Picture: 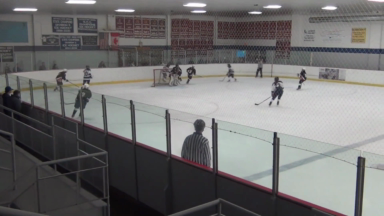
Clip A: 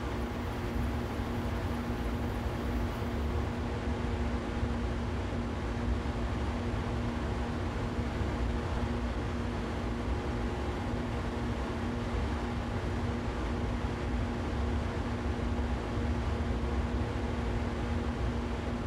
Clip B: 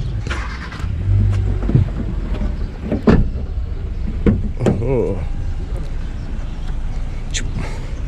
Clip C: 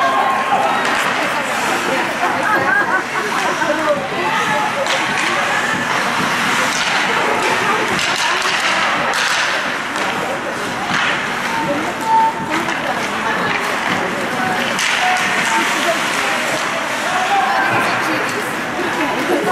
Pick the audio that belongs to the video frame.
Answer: C